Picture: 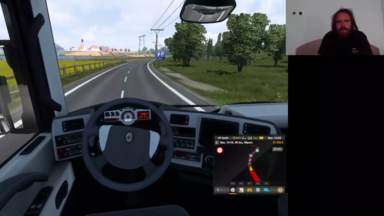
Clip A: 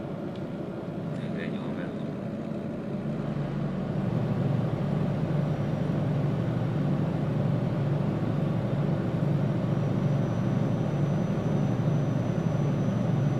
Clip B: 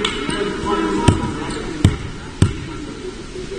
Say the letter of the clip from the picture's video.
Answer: A